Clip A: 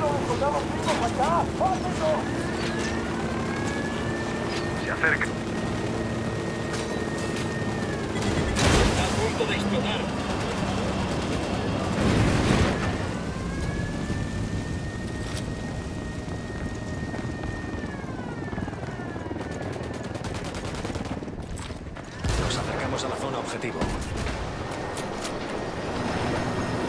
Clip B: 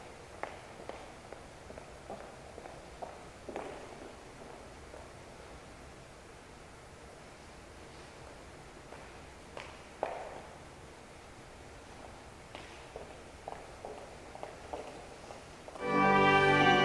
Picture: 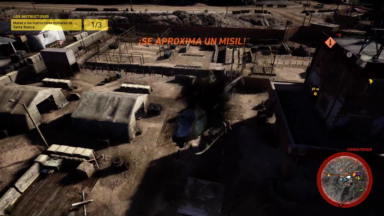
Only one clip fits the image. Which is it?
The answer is A